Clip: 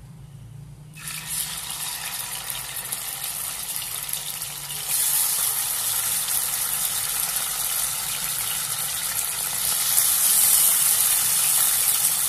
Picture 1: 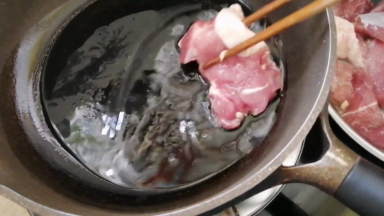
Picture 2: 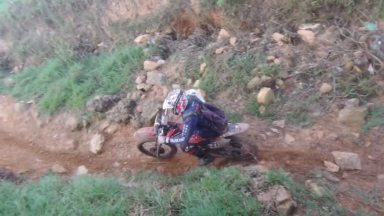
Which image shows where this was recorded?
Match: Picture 1